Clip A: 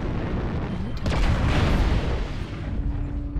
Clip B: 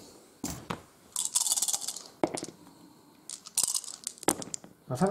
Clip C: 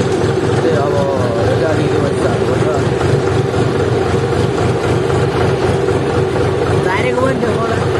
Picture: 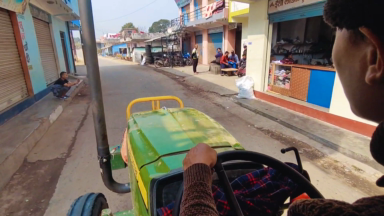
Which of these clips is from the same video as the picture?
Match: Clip C